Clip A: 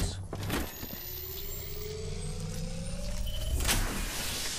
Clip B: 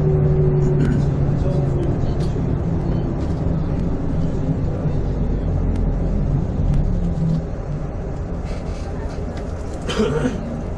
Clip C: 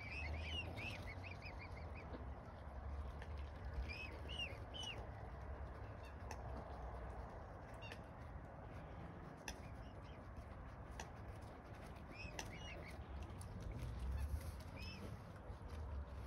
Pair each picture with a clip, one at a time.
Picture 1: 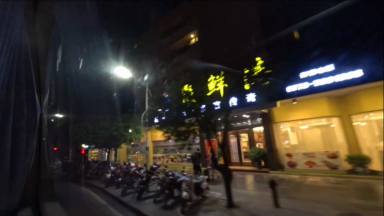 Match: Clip B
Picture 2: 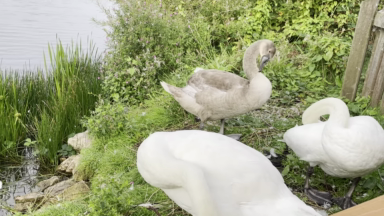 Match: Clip C